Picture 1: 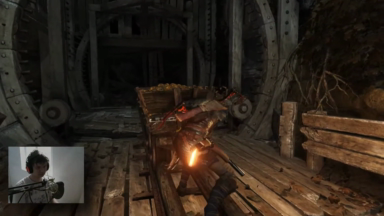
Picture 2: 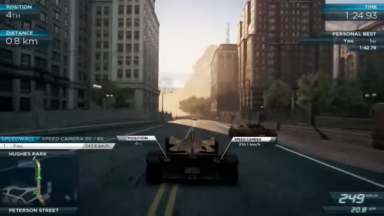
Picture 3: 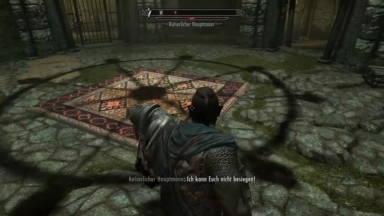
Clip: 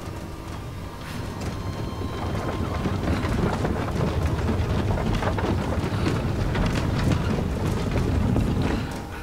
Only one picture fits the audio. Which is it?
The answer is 1